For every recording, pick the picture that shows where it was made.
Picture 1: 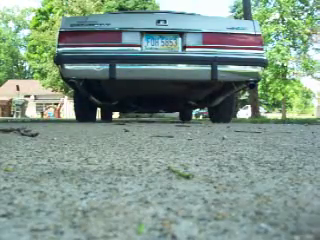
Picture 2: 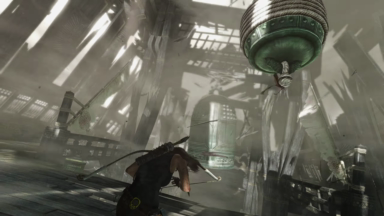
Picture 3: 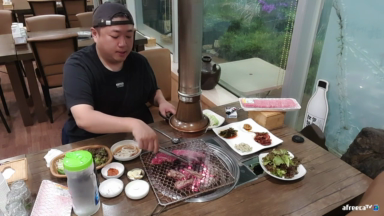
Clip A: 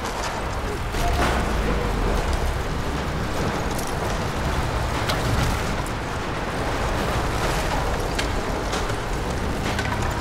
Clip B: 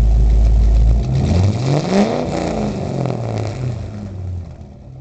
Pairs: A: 2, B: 1